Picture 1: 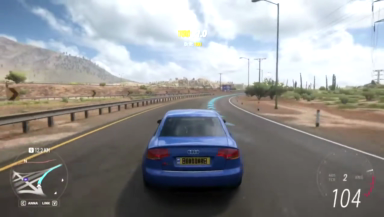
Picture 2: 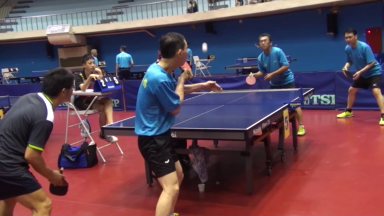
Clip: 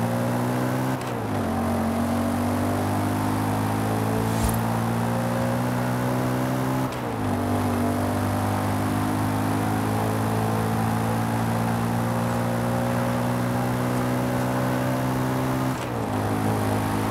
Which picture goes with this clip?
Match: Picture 1